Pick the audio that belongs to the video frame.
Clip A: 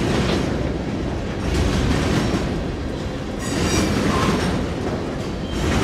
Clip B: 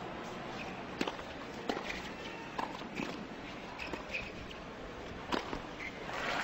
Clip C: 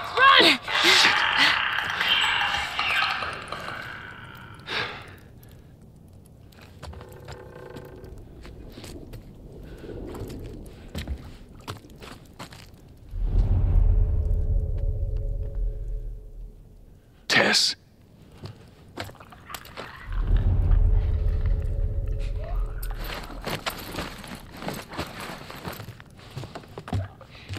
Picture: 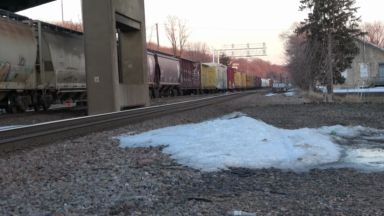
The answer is A